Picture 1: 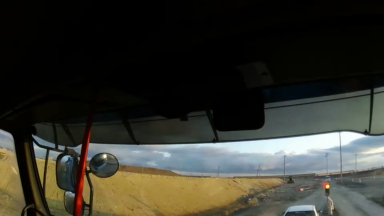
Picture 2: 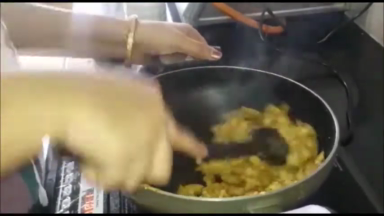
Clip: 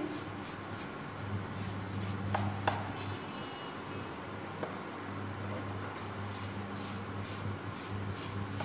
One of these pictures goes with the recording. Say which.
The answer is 2